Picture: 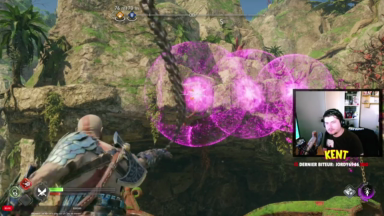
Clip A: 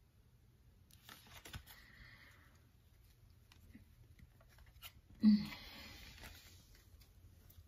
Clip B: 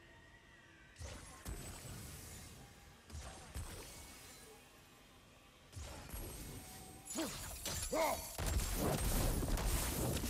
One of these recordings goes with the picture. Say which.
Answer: B